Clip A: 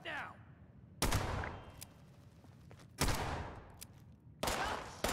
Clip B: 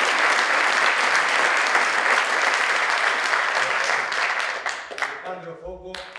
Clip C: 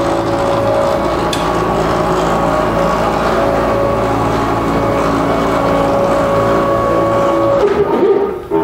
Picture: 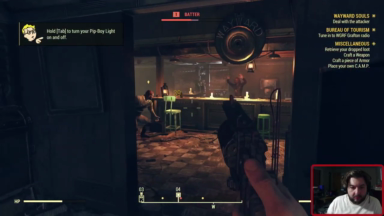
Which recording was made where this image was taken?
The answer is A